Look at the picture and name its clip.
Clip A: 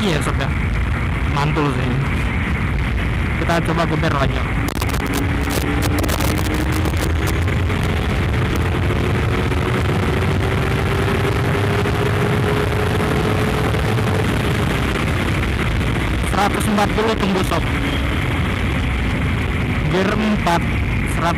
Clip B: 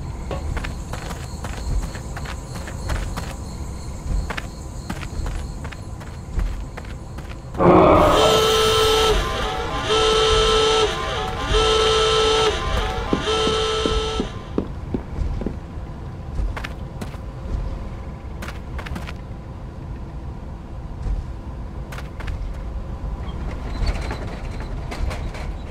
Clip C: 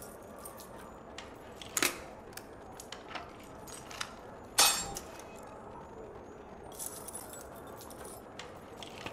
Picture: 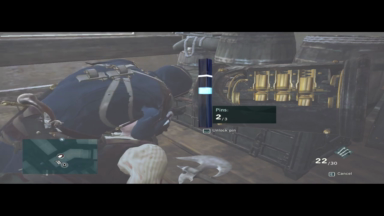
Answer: C